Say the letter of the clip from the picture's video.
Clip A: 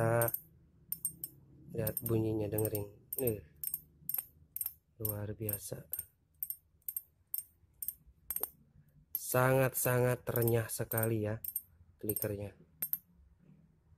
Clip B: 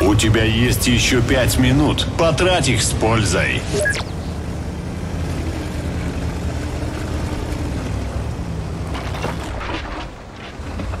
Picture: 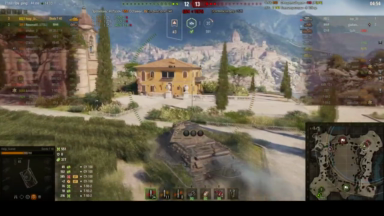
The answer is B